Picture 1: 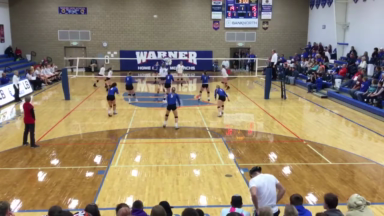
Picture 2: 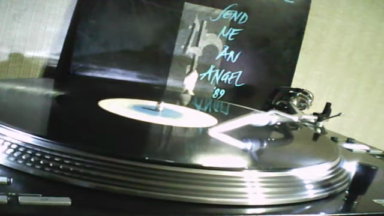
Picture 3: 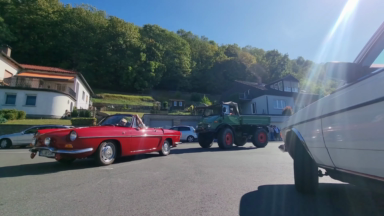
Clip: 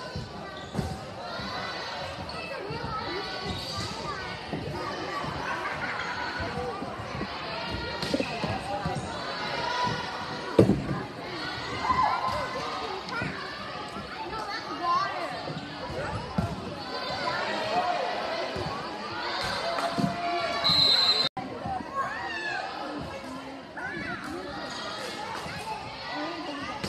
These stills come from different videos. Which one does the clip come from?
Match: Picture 1